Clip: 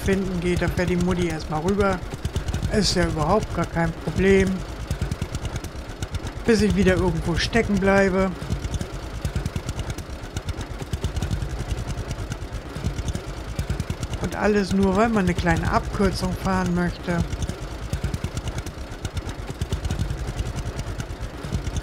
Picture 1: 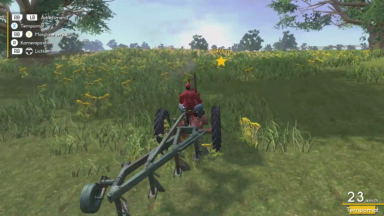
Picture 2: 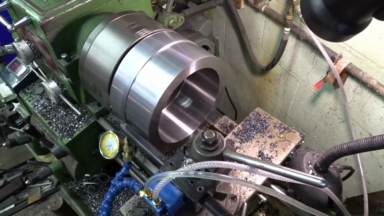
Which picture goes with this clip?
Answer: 1